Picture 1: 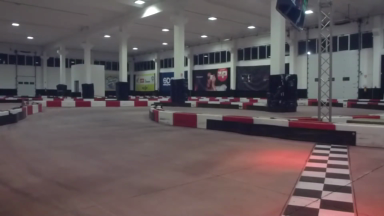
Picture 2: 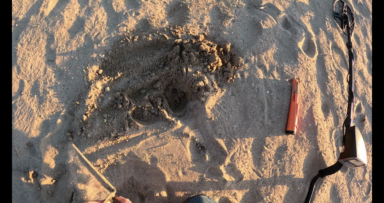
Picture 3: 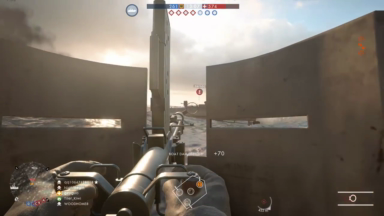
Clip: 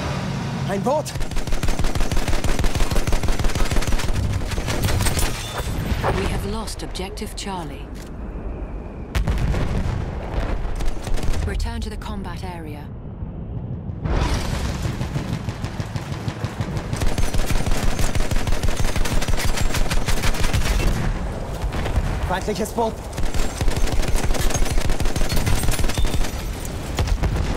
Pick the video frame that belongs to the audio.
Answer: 3